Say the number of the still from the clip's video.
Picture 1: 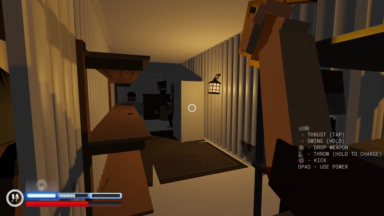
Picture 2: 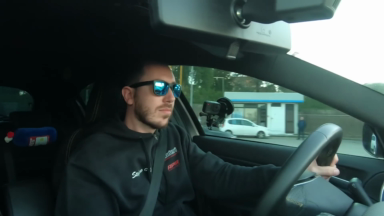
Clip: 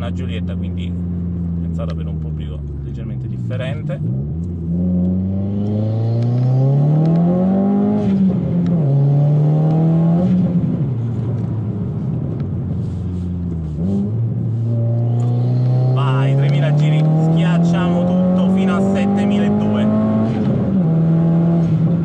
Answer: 2